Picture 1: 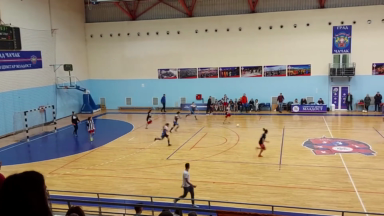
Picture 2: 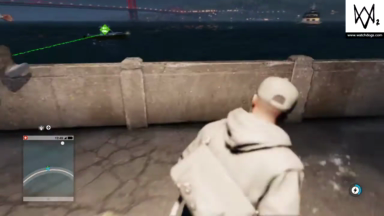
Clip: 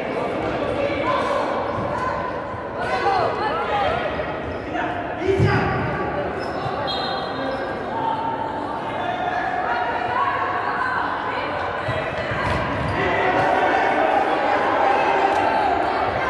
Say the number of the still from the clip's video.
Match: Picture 1